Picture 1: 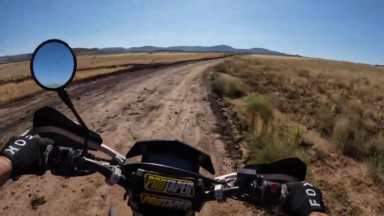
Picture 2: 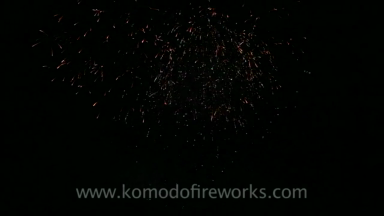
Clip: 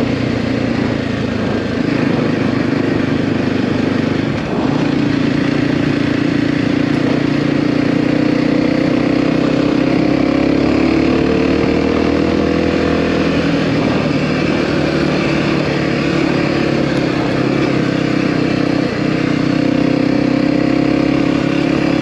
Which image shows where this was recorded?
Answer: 1